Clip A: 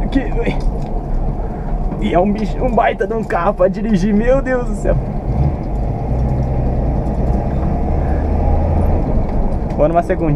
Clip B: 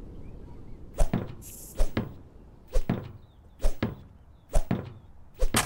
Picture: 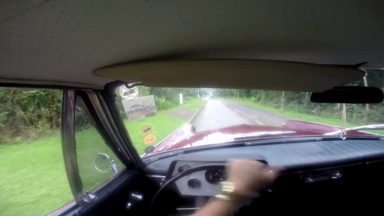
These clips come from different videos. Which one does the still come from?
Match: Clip A